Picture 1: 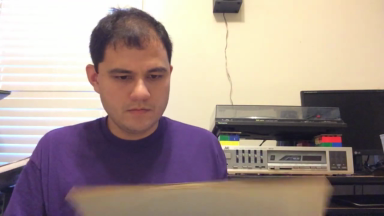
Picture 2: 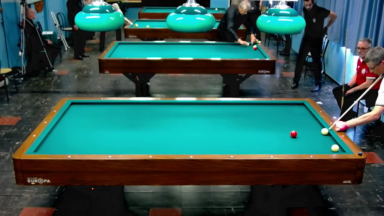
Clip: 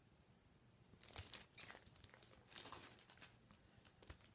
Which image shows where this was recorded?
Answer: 1